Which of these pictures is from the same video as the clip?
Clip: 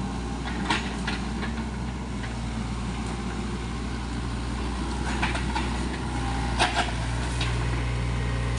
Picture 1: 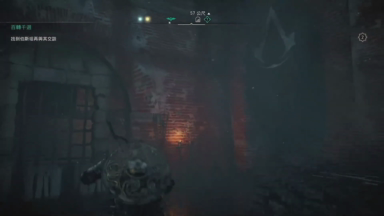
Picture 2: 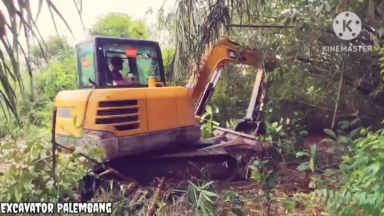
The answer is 2